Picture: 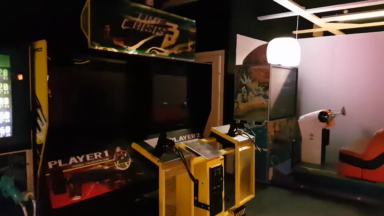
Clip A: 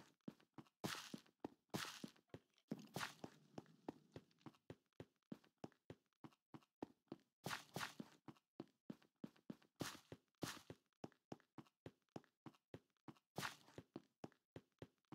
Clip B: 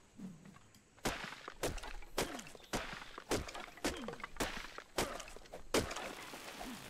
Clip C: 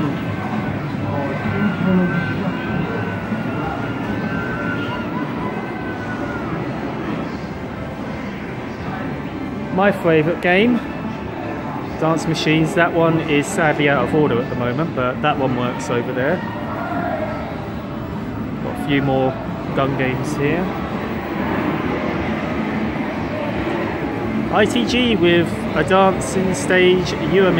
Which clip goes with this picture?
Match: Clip C